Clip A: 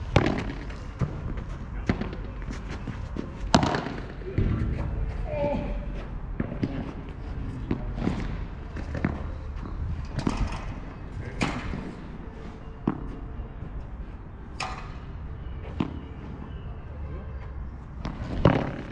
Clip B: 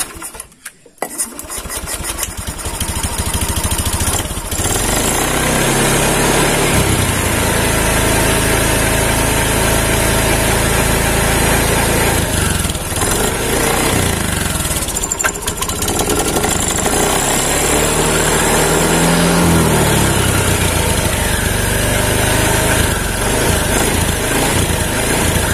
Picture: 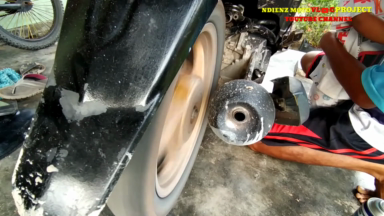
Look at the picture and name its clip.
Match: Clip B